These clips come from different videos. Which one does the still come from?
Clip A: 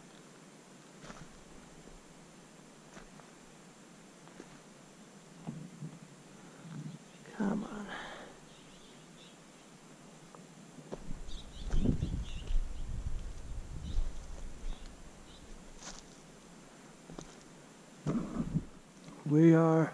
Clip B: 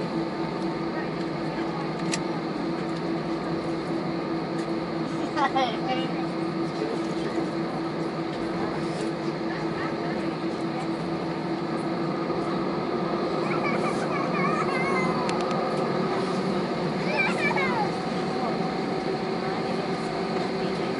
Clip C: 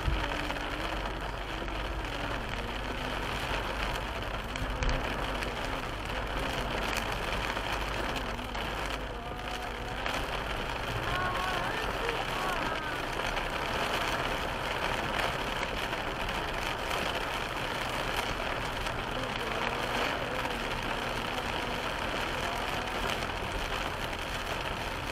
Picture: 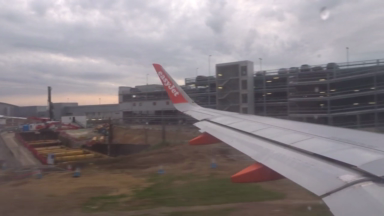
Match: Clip B